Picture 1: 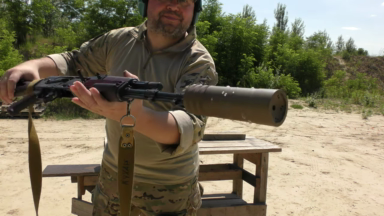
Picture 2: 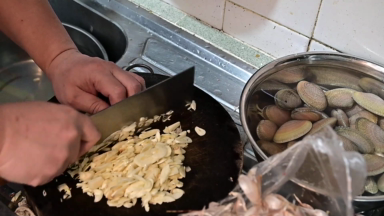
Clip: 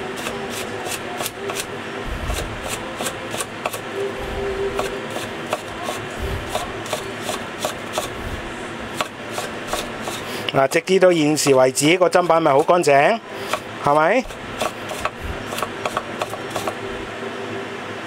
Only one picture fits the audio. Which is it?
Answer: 2